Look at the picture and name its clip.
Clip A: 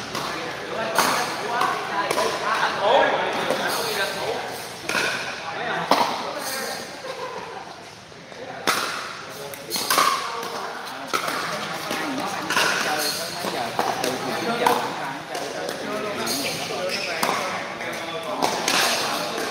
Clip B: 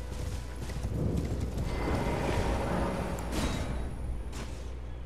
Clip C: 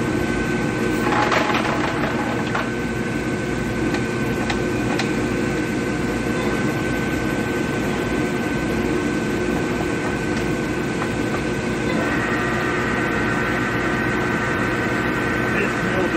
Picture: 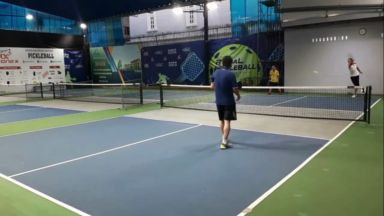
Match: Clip A